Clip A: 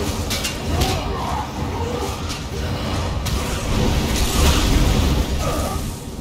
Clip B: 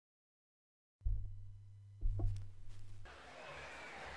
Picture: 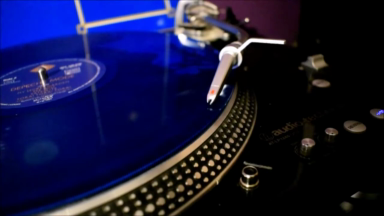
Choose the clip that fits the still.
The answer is B